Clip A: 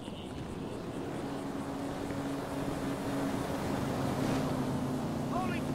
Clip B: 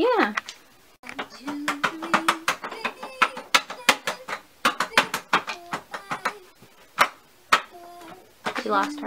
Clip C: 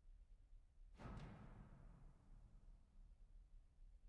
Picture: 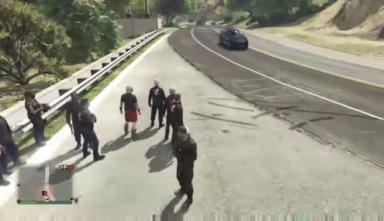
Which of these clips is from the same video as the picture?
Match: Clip A